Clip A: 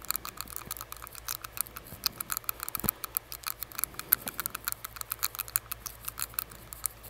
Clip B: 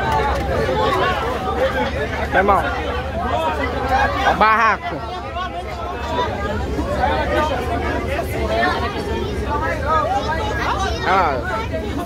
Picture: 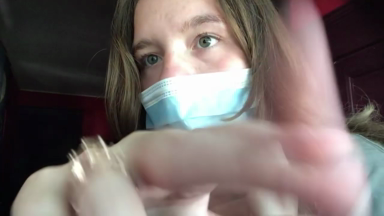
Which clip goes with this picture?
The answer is A